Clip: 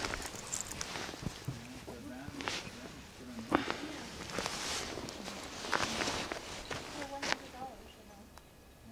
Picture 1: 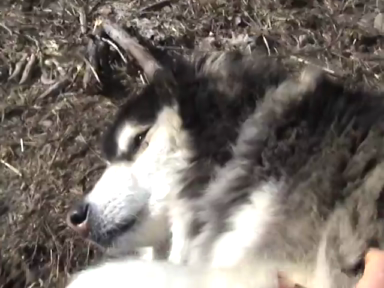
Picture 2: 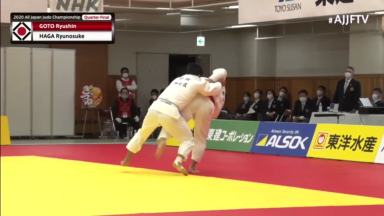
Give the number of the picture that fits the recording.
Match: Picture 1